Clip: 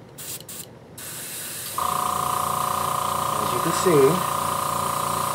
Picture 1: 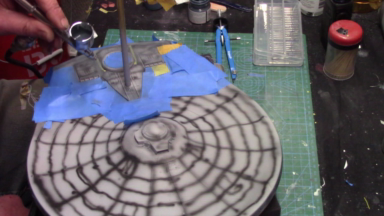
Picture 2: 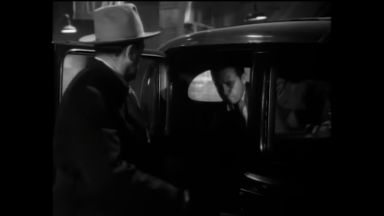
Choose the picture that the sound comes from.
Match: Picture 1